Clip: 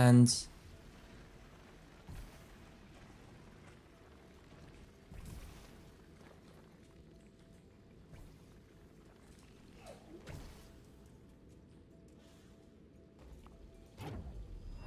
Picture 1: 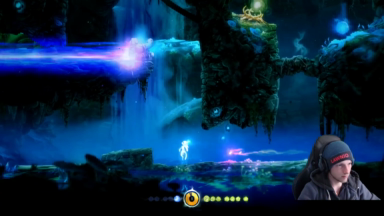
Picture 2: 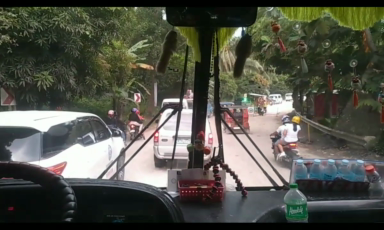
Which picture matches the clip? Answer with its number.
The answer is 1